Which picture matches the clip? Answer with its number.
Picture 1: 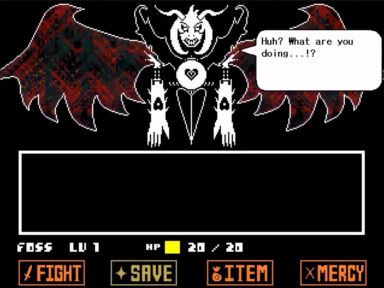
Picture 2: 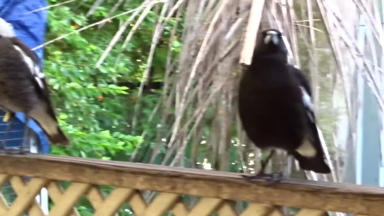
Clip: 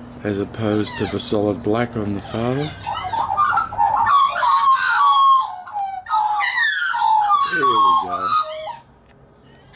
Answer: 2